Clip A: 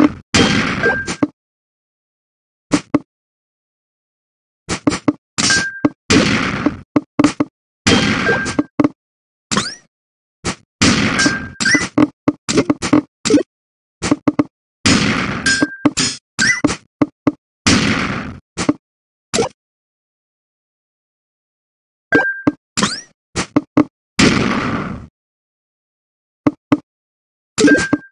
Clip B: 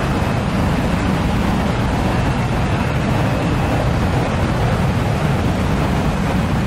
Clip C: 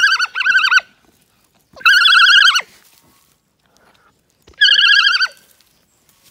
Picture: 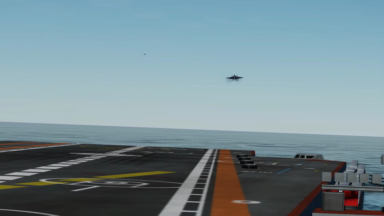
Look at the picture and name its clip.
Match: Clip B